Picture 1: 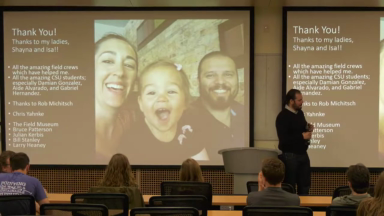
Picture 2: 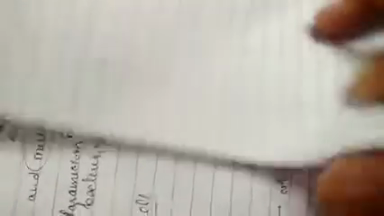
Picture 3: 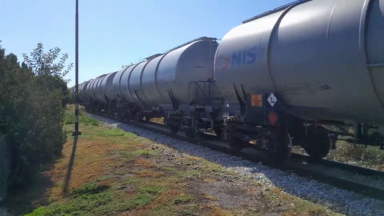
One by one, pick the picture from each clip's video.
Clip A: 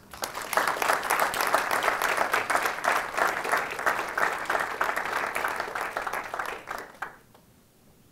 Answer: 1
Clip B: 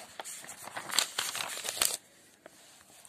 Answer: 2